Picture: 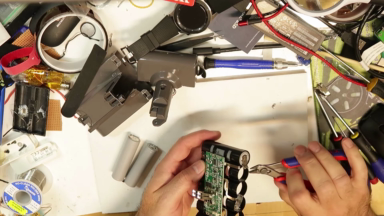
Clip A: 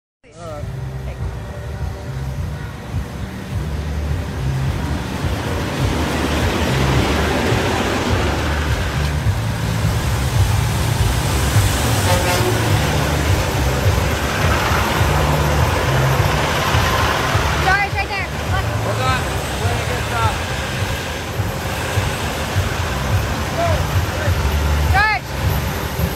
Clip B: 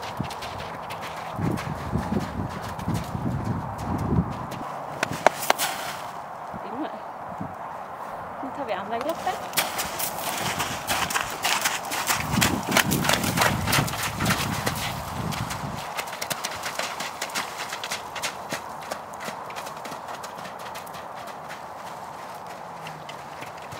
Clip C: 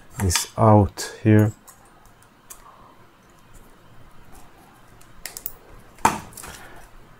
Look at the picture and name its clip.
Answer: C